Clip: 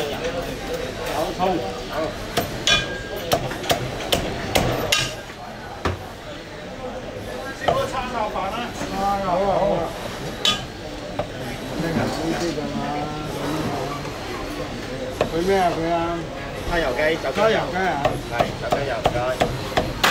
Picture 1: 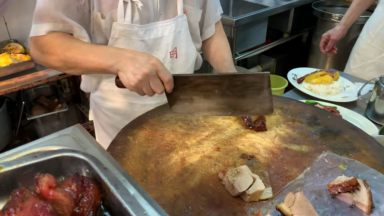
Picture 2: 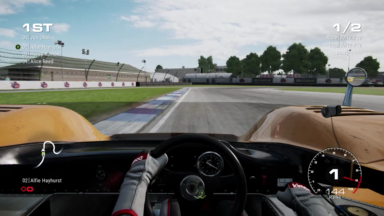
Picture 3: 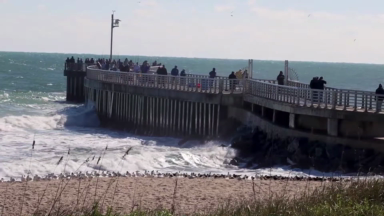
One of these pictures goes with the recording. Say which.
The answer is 1